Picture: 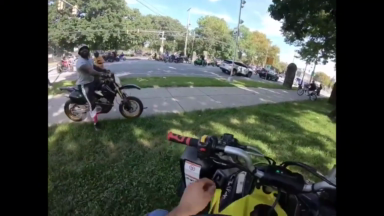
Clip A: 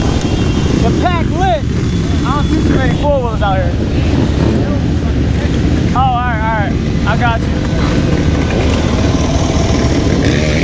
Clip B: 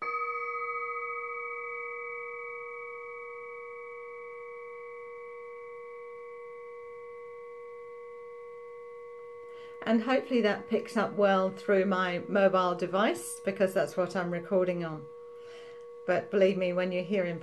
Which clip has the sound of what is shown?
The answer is A